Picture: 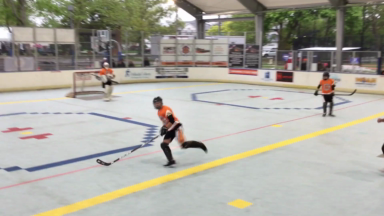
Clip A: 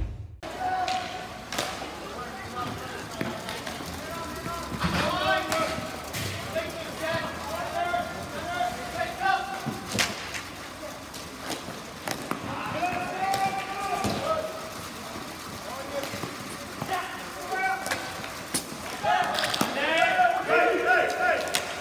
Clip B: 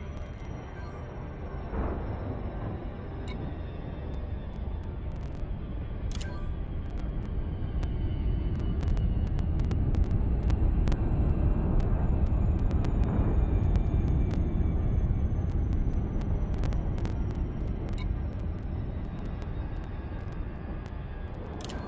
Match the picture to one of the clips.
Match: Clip A